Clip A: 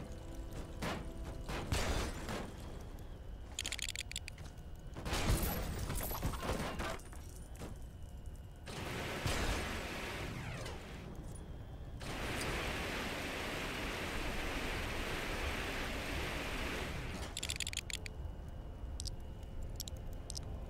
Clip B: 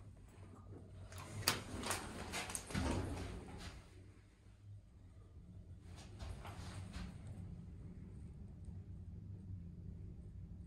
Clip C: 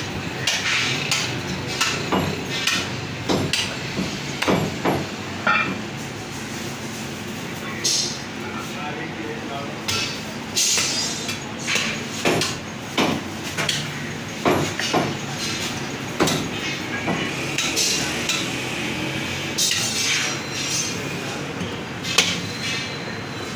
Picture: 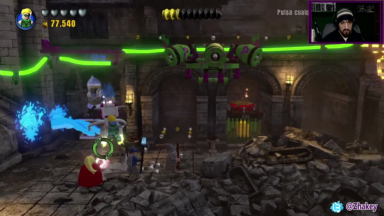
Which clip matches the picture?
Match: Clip A